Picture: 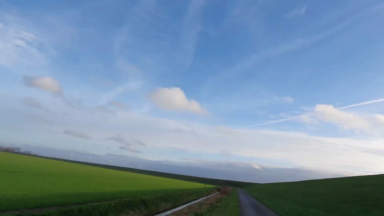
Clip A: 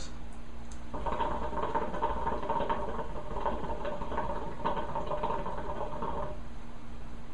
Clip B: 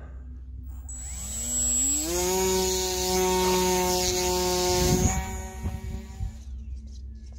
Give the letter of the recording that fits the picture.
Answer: B